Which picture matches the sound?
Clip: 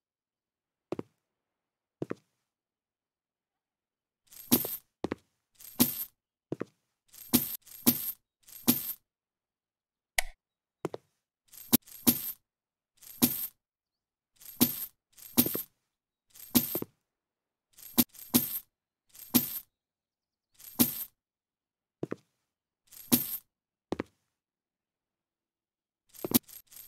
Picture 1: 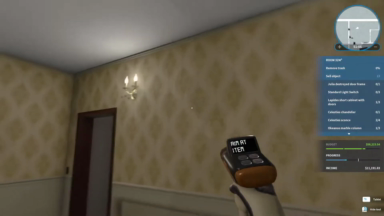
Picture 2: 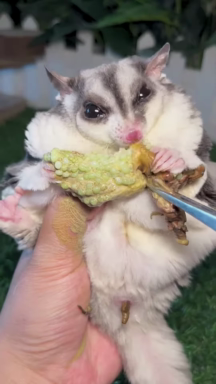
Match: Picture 1